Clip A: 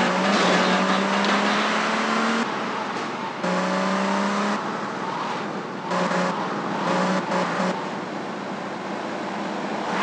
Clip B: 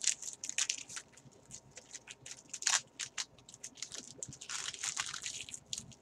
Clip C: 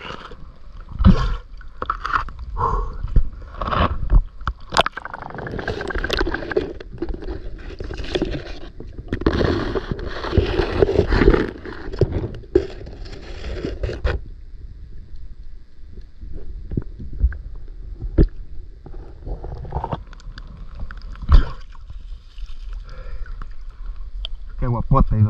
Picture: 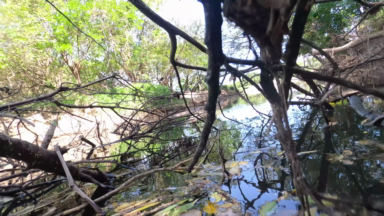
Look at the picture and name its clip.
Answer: C